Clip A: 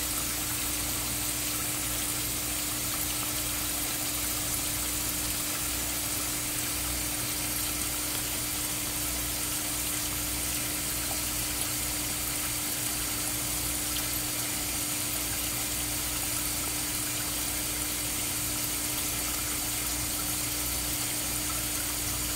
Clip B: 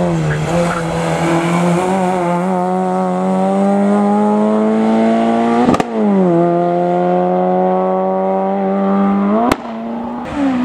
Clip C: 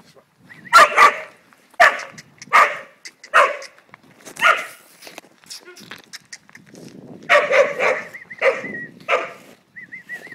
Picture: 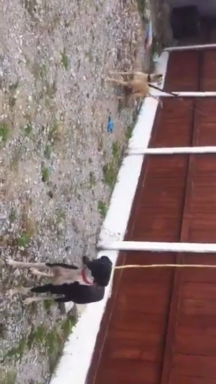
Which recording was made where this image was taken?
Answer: C